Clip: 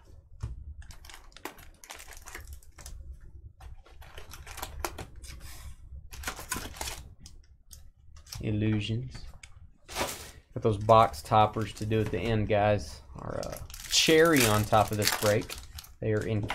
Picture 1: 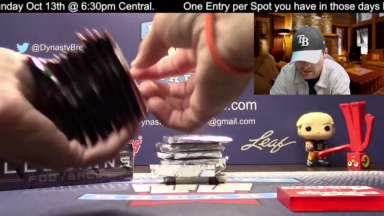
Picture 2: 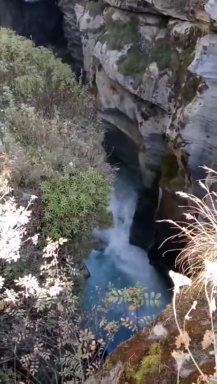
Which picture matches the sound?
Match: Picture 1